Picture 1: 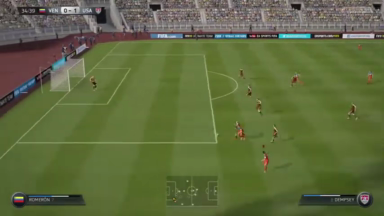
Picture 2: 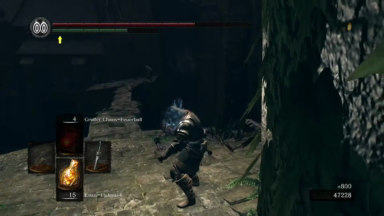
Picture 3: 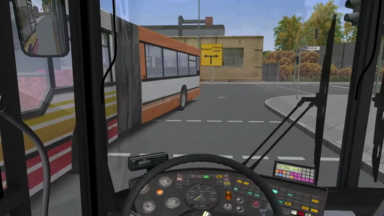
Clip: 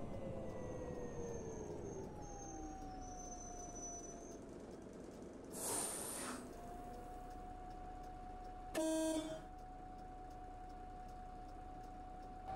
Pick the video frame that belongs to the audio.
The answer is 3